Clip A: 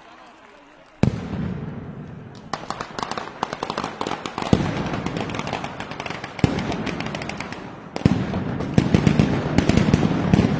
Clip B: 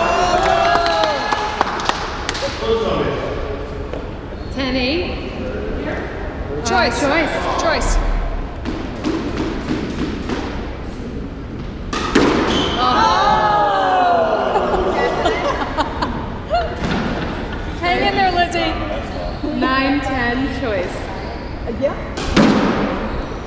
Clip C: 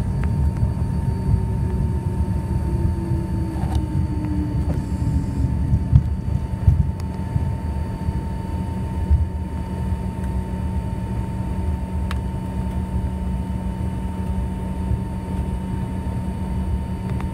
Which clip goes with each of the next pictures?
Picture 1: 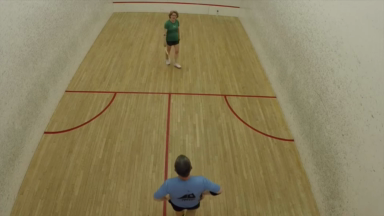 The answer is B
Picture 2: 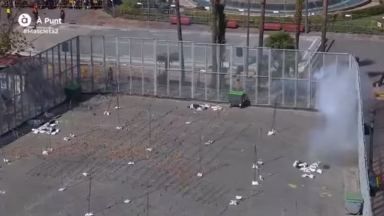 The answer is A